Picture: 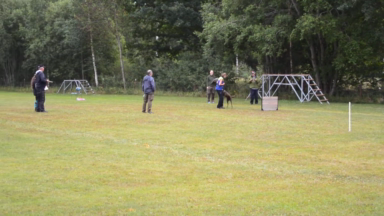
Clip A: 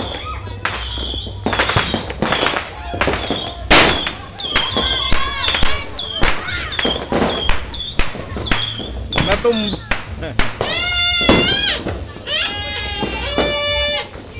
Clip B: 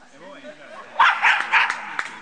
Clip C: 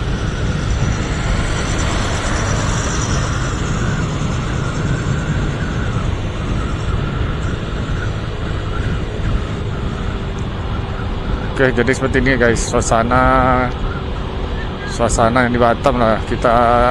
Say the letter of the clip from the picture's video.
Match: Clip B